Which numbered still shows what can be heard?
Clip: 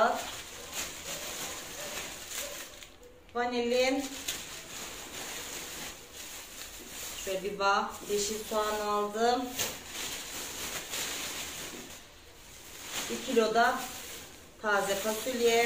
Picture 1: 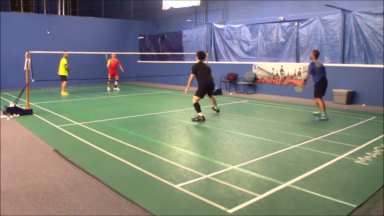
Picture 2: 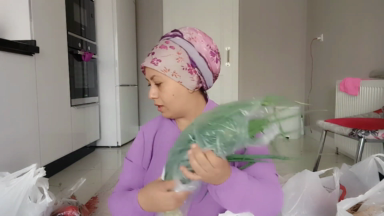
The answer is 2